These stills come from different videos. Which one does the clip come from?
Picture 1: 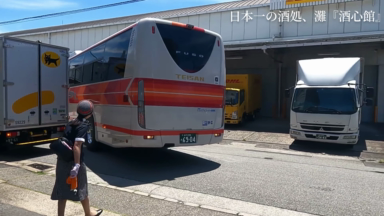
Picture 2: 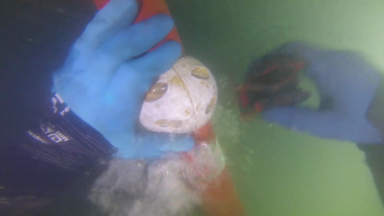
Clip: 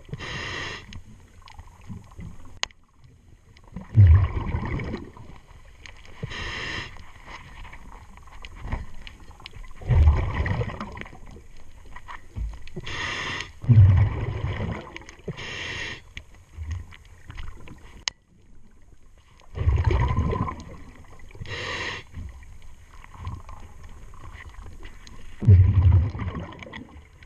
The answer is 2